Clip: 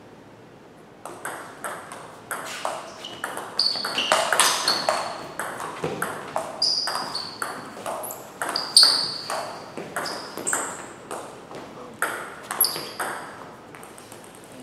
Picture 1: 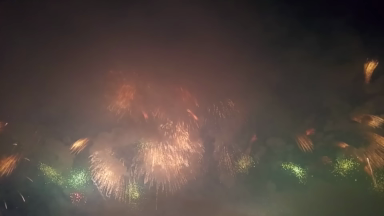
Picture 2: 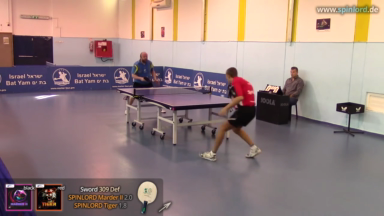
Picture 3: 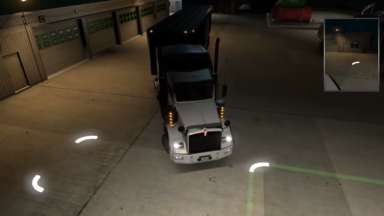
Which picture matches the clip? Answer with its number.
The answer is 2